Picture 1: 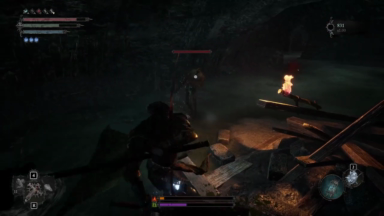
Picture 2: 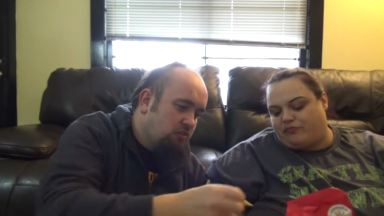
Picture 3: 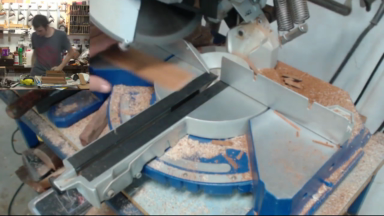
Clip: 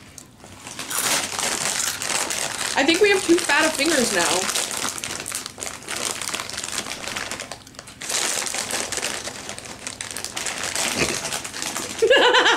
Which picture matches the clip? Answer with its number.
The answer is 2